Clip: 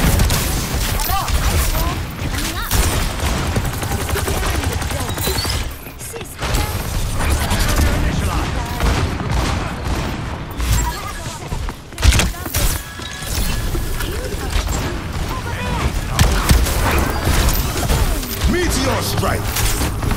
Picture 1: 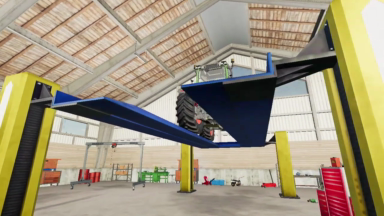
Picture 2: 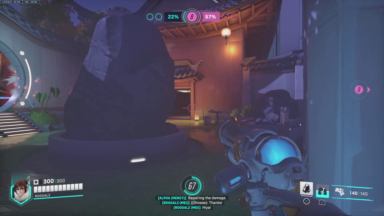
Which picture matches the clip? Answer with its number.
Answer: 2